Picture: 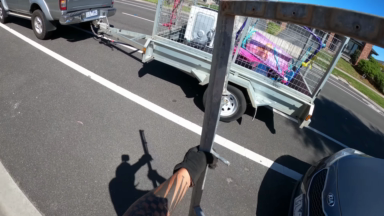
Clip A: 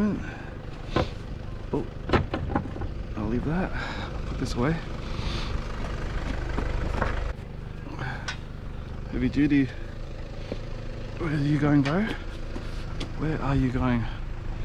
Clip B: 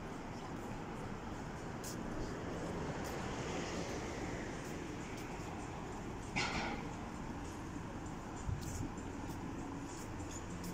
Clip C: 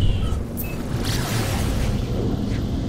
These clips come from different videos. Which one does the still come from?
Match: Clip A